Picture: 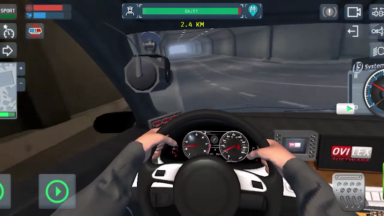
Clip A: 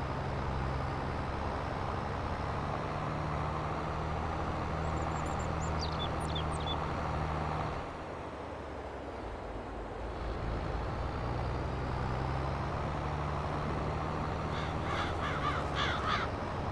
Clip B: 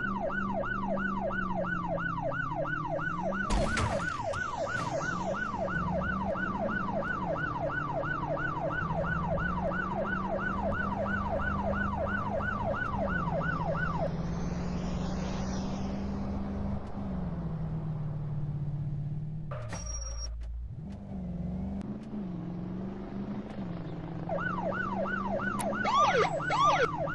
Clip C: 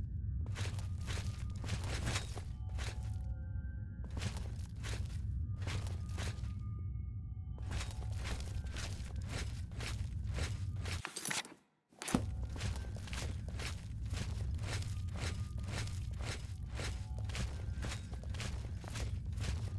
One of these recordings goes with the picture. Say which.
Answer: B